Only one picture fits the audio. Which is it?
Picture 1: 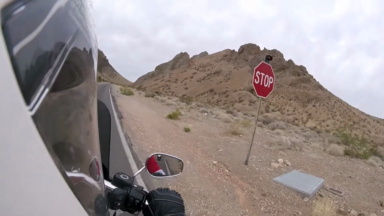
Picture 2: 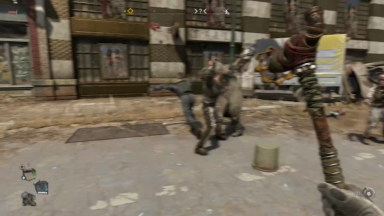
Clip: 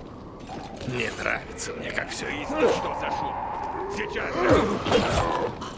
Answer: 2